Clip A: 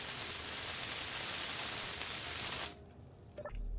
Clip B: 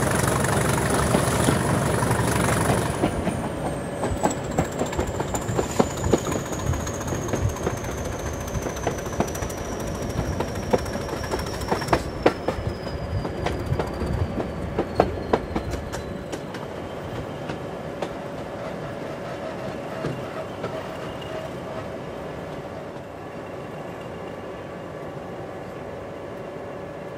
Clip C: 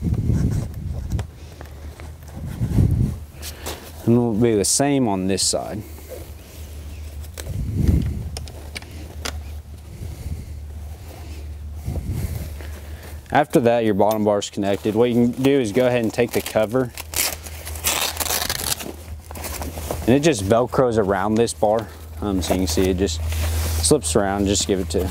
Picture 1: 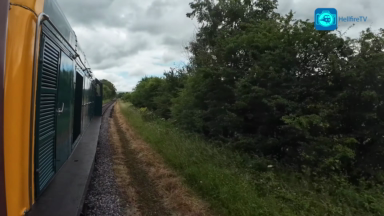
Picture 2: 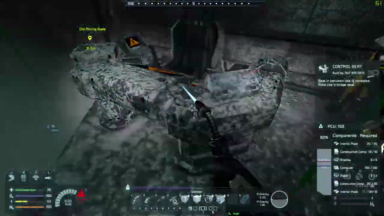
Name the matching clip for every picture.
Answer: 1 B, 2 A